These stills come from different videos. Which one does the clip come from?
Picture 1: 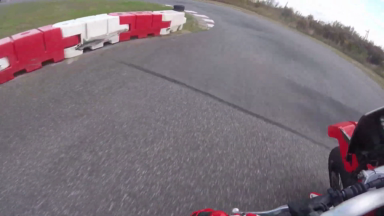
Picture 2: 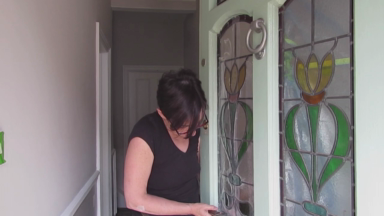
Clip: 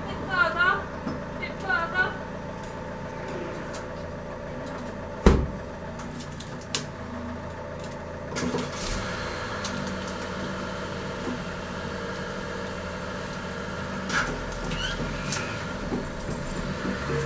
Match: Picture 2